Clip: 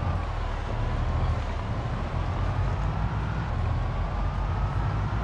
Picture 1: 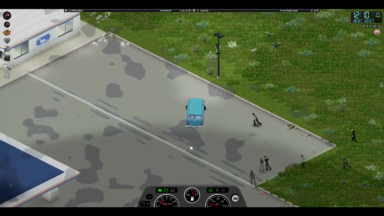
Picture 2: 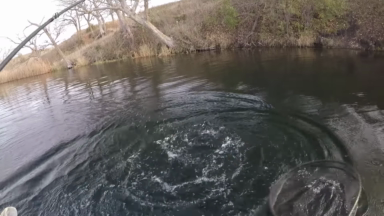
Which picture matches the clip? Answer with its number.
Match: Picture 1